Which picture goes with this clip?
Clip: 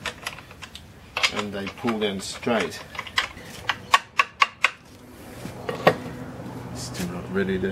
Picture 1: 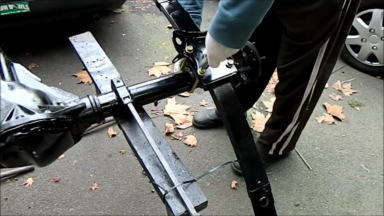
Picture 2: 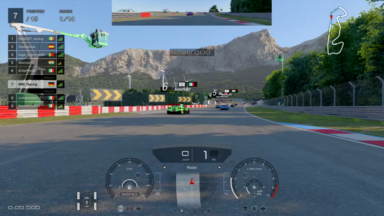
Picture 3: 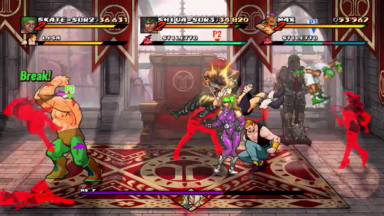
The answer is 1